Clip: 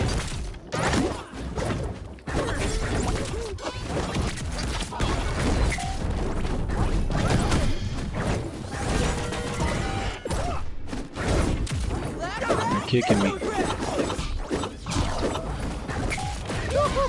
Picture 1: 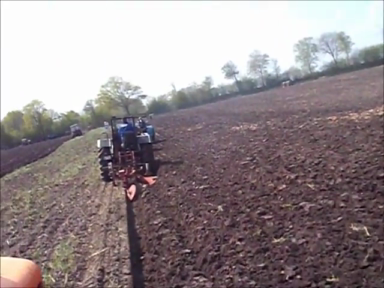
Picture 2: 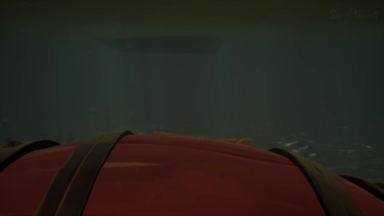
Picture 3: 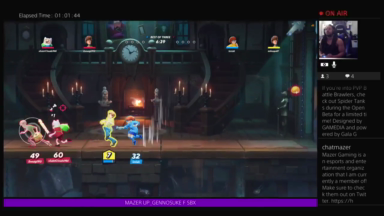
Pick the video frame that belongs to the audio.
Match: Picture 3